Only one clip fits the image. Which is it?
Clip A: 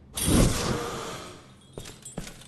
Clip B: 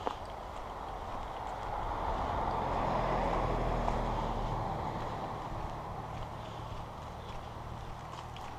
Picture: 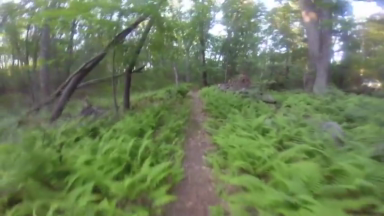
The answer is B